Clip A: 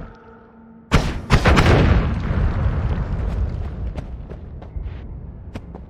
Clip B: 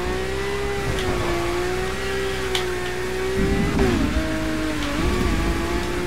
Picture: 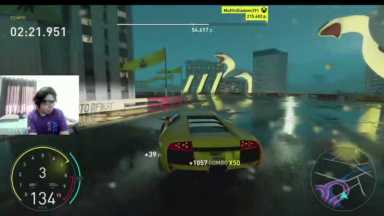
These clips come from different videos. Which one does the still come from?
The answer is B